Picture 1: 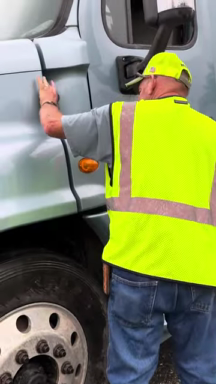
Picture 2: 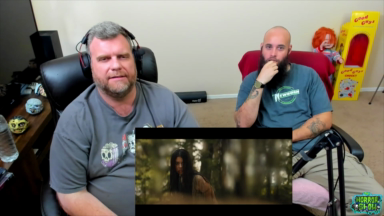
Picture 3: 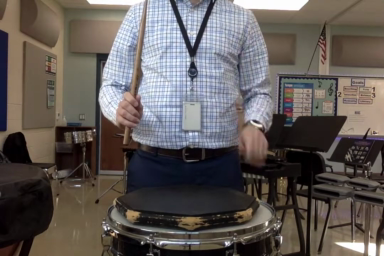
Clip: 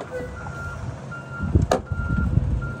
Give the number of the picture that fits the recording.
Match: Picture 1